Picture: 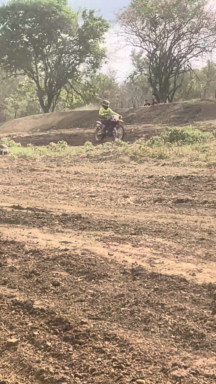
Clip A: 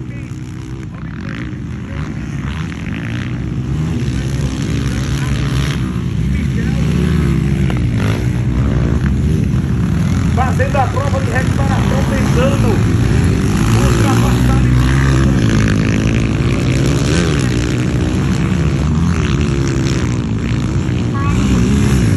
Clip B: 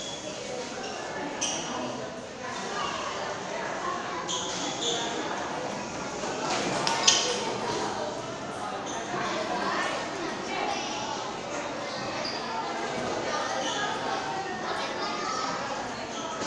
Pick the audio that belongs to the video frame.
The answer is A